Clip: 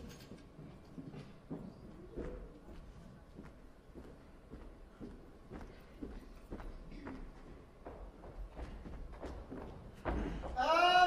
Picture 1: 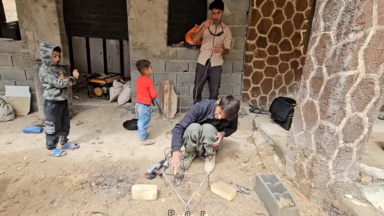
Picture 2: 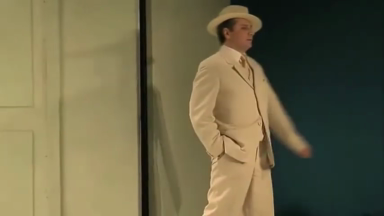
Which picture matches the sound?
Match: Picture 2